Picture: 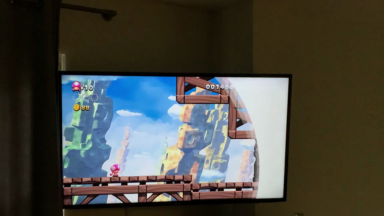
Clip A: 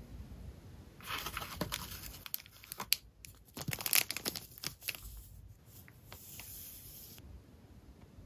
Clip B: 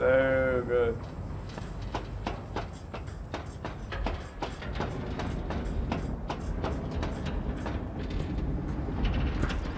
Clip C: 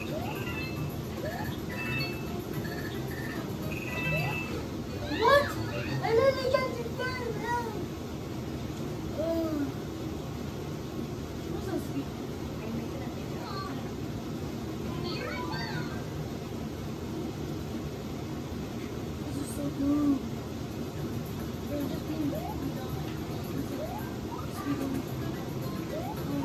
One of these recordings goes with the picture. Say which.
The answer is C